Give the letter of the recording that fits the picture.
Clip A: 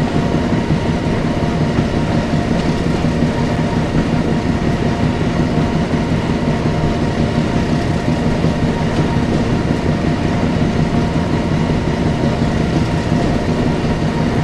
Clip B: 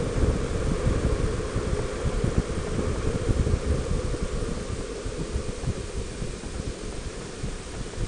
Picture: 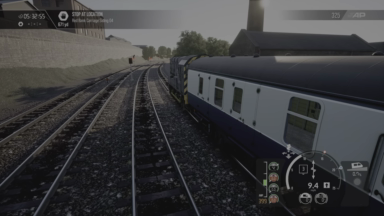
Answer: A